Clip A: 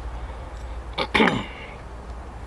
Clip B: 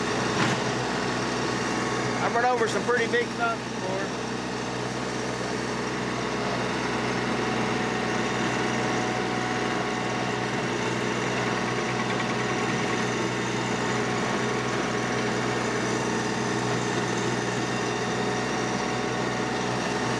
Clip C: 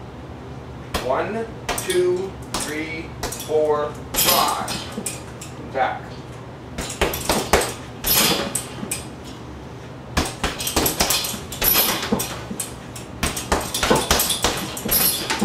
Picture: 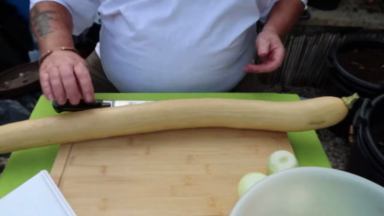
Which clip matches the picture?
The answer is A